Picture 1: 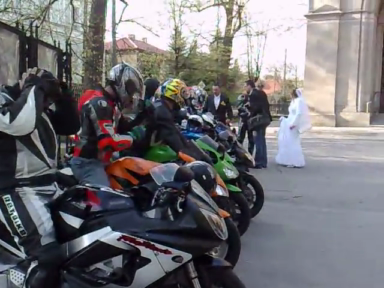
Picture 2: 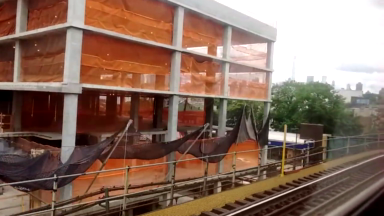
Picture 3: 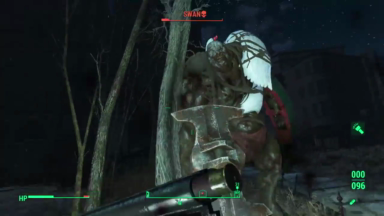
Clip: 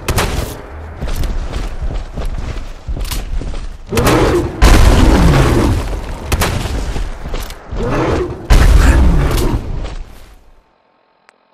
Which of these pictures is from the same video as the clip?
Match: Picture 3